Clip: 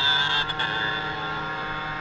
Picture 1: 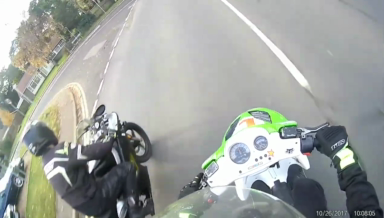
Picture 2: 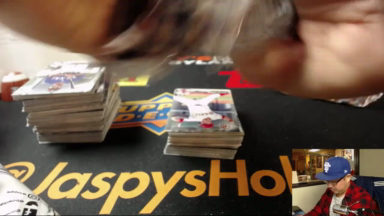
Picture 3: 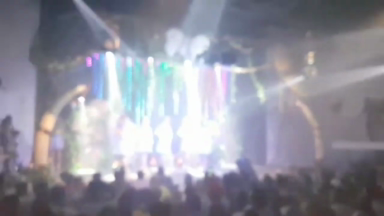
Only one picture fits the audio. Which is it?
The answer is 1